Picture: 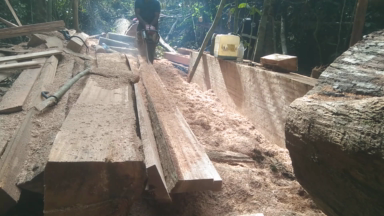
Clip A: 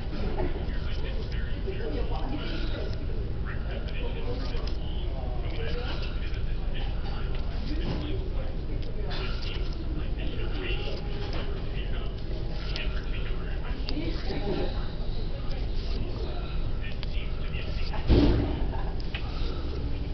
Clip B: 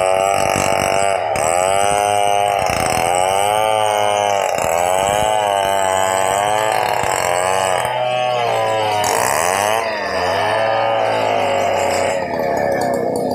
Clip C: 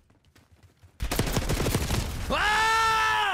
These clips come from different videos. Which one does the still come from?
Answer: B